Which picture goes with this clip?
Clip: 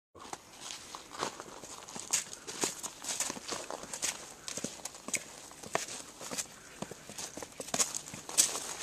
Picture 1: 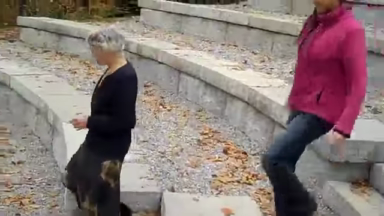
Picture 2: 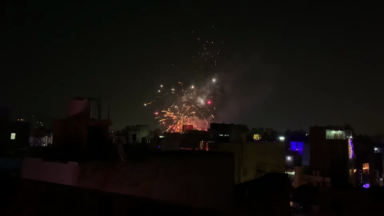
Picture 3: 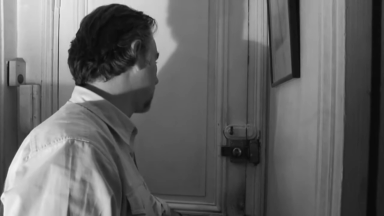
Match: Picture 1